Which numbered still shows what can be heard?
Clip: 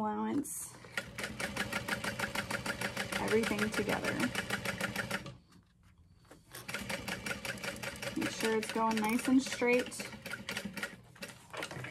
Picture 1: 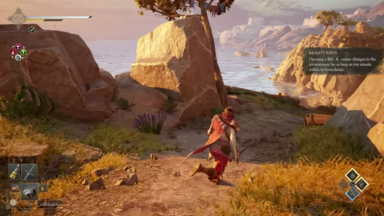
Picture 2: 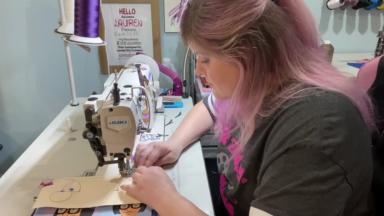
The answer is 2